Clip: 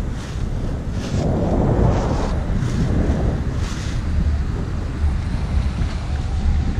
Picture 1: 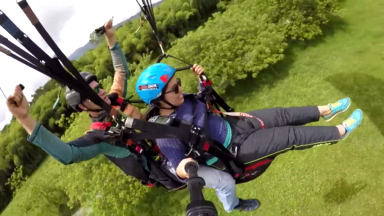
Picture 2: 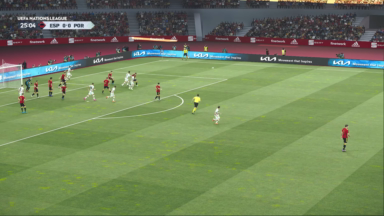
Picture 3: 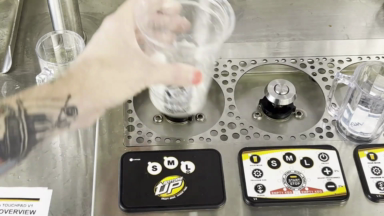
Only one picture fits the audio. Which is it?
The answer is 1